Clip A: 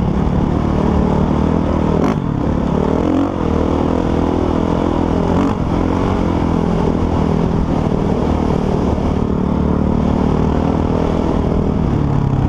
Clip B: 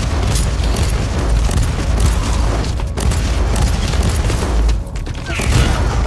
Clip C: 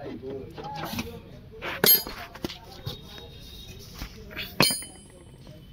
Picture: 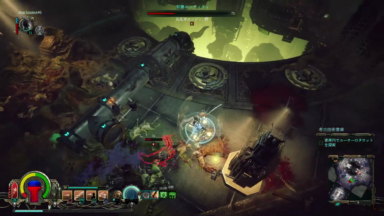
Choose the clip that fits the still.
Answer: B